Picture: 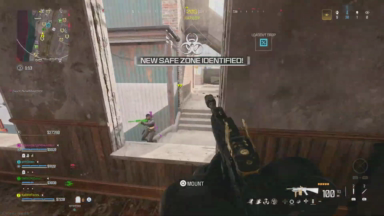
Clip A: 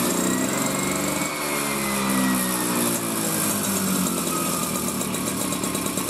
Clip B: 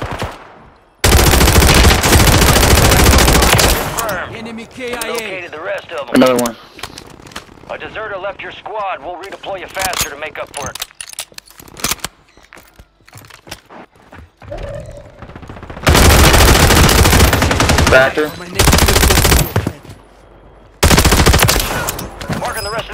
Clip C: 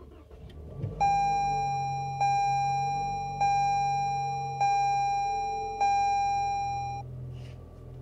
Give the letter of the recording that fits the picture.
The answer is B